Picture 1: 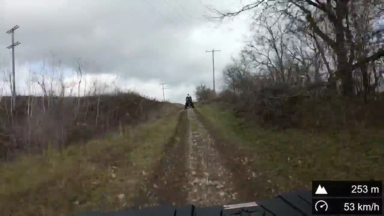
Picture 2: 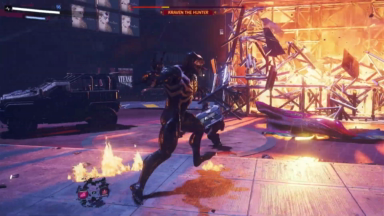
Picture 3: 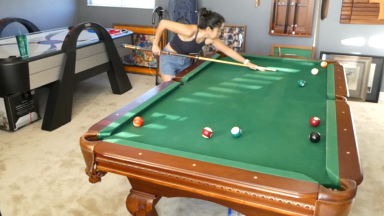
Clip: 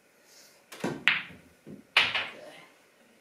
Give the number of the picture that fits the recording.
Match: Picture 3